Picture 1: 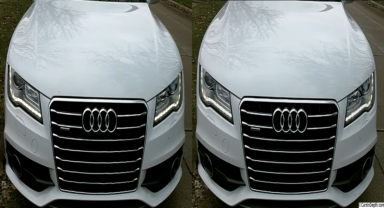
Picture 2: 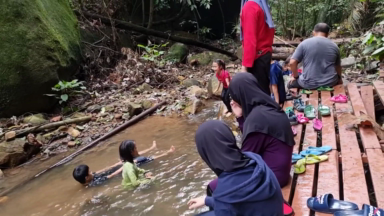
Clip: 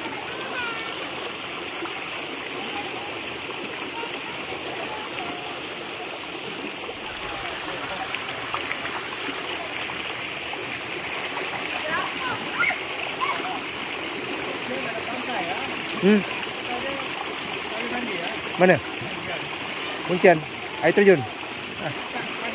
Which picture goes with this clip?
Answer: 2